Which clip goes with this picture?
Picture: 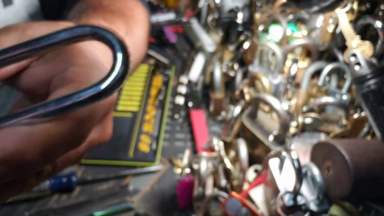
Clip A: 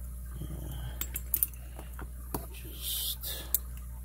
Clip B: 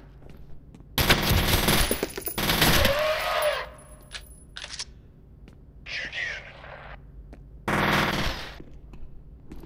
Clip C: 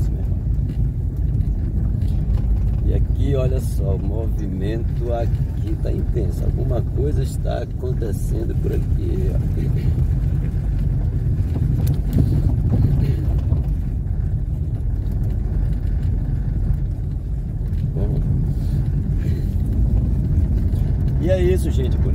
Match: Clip A